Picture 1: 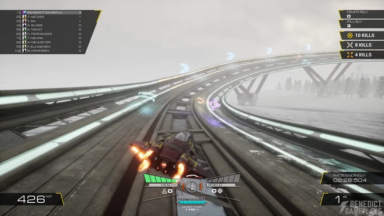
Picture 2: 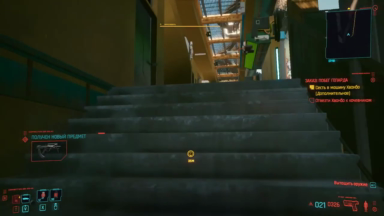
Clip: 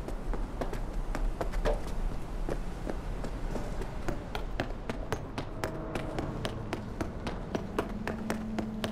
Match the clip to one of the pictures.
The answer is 2